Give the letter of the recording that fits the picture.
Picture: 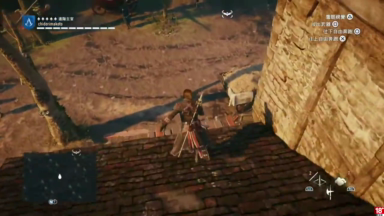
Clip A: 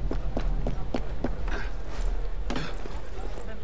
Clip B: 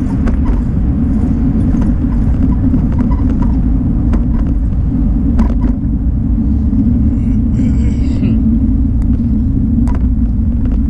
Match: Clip A